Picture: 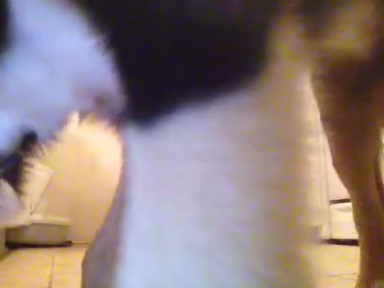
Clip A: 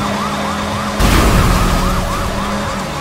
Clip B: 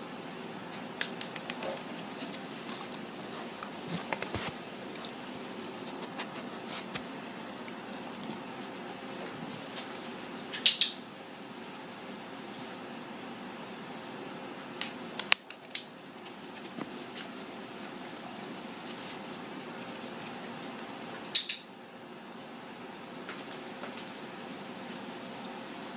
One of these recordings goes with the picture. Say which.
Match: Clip B